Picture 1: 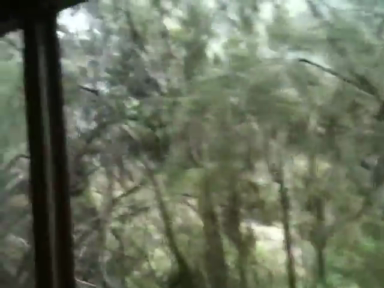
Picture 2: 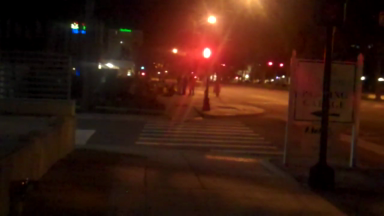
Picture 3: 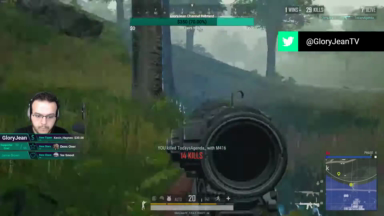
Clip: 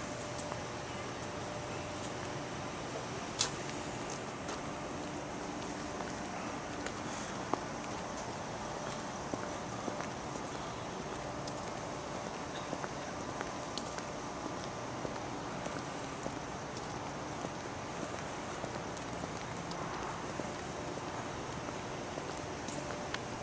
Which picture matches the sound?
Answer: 2